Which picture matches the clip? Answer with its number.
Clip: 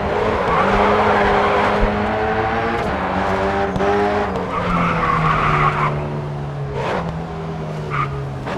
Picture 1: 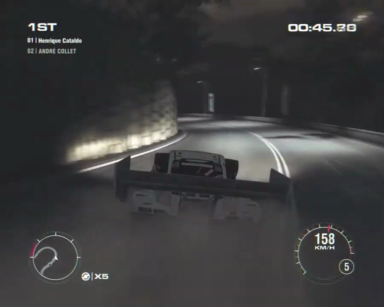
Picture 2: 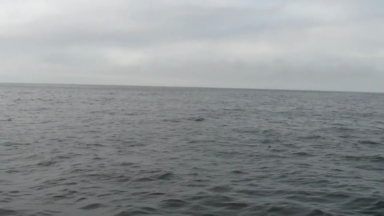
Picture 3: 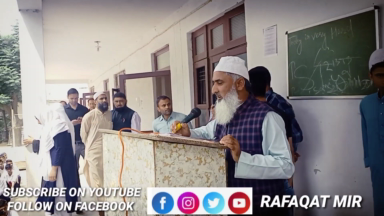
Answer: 1